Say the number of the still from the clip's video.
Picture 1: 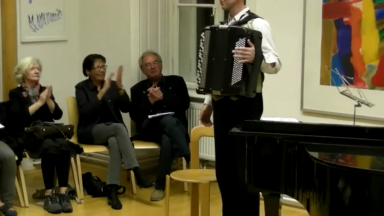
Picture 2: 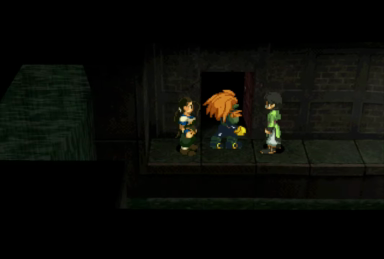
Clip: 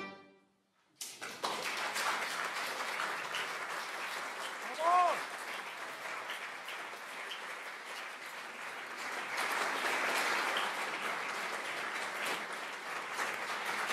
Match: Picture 1